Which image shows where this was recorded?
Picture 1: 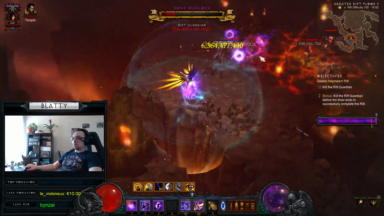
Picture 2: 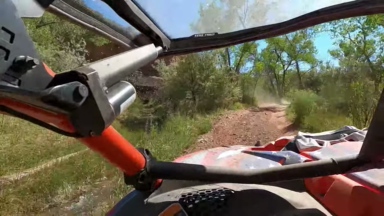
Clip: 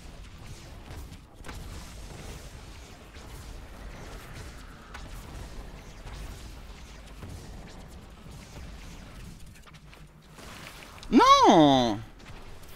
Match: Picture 1